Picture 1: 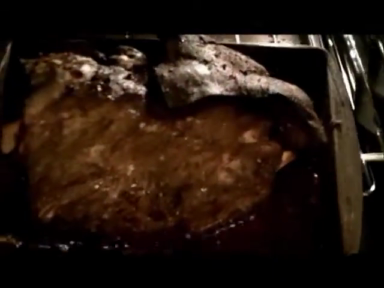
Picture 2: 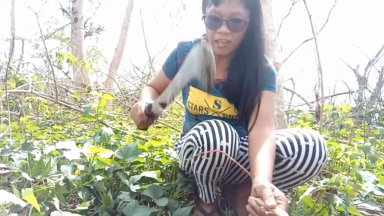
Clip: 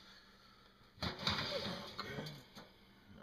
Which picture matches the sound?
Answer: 1